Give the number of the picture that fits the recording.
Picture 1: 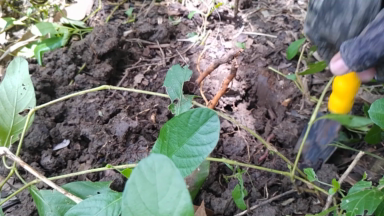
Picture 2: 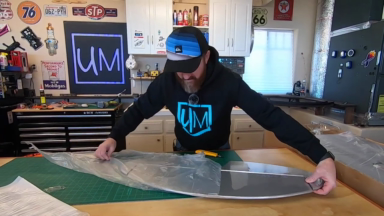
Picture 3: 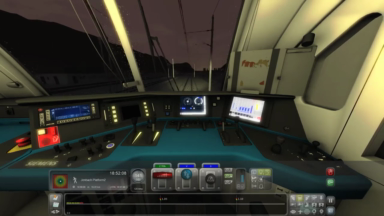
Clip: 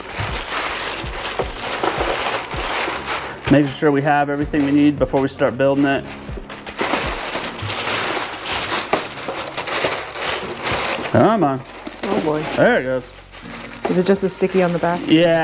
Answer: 2